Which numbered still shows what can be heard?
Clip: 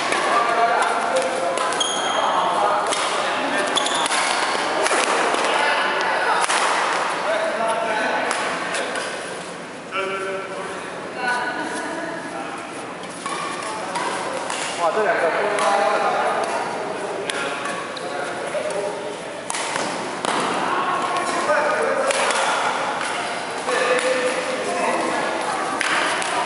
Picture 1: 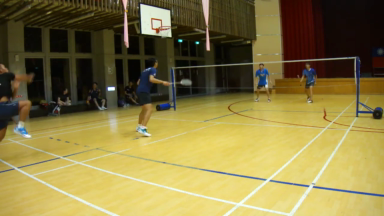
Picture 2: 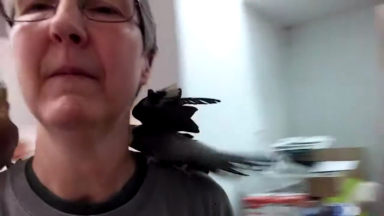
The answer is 1